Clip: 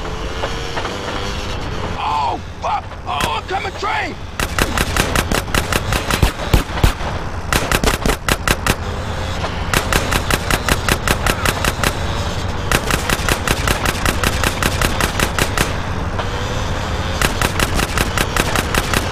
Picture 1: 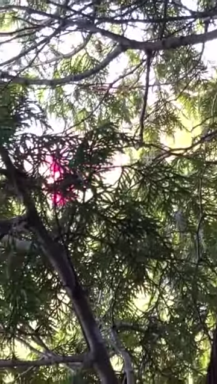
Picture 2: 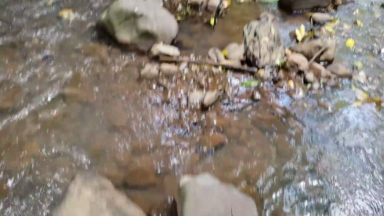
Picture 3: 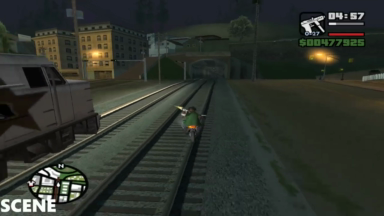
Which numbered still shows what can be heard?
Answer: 3